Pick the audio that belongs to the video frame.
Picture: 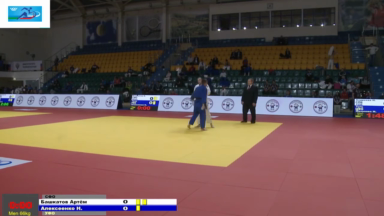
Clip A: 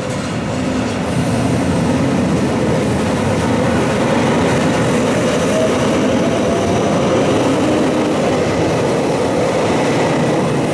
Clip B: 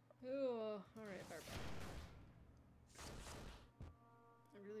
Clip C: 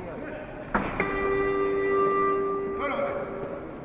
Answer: C